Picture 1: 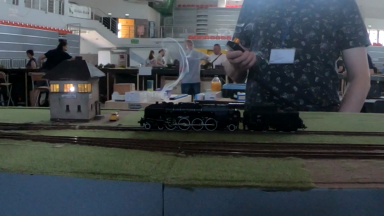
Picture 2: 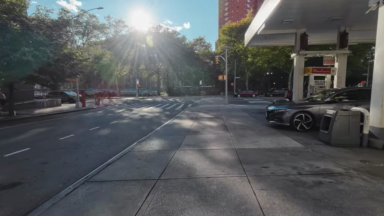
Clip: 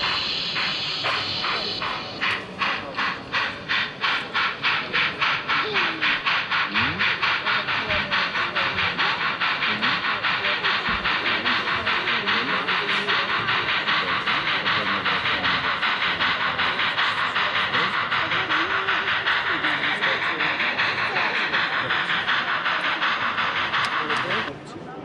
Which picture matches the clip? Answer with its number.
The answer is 1